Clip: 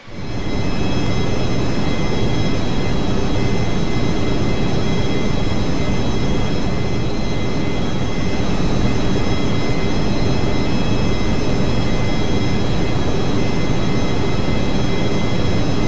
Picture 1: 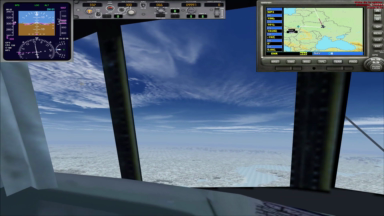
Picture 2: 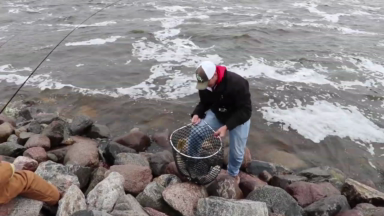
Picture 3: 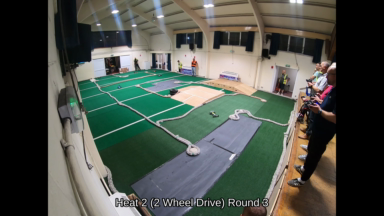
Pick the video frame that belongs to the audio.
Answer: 1